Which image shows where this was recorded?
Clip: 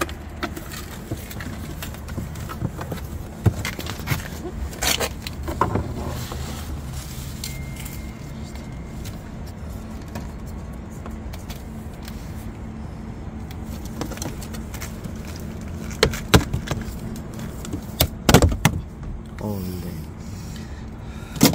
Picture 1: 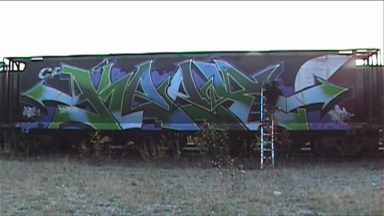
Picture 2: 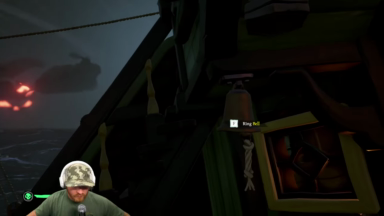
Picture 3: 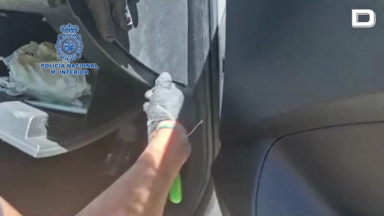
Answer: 3